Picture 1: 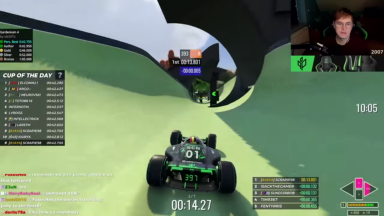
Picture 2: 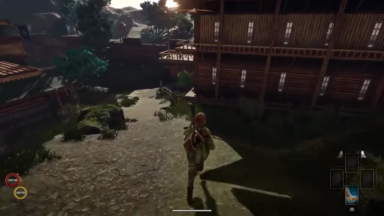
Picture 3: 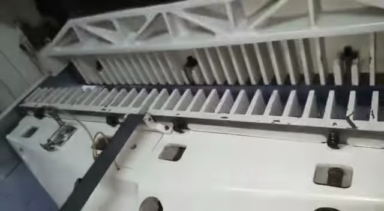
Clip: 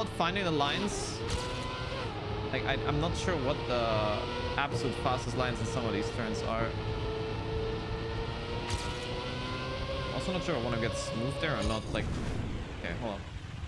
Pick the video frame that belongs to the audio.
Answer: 1